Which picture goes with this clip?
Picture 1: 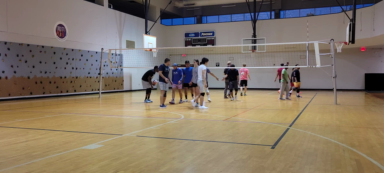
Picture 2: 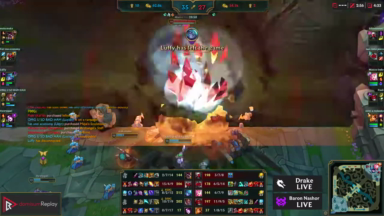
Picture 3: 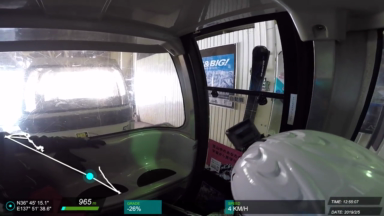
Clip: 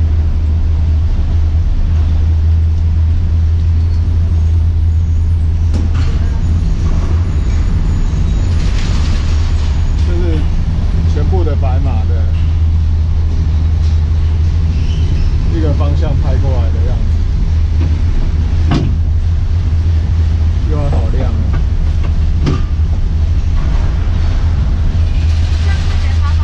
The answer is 3